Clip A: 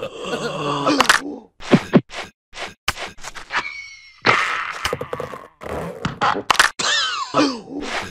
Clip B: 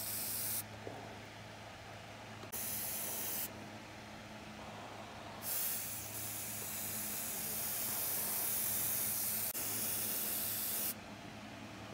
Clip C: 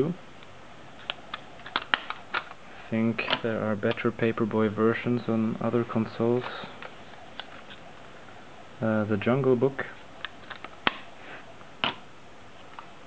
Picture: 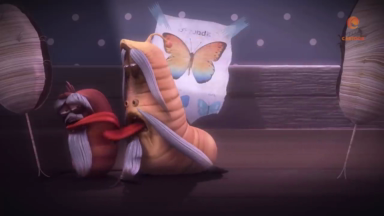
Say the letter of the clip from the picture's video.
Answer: A